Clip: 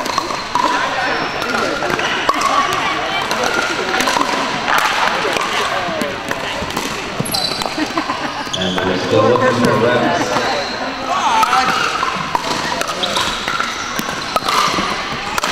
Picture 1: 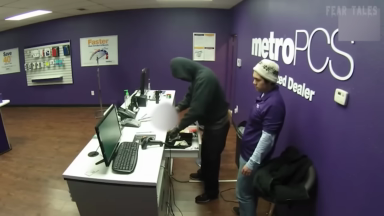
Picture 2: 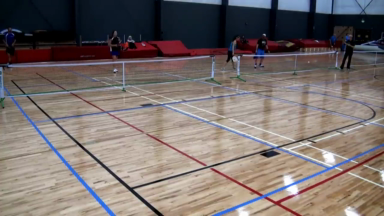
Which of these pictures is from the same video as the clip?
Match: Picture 2